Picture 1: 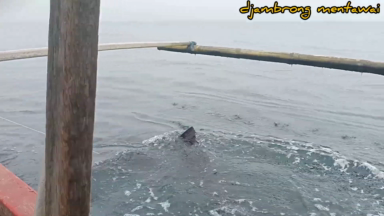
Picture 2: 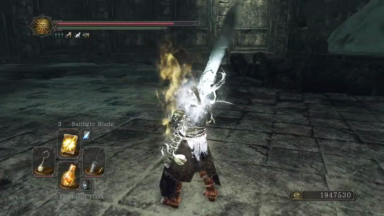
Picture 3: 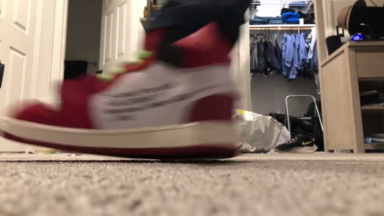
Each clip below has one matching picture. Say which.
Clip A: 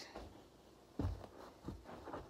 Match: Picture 3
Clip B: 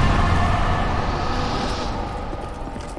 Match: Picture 2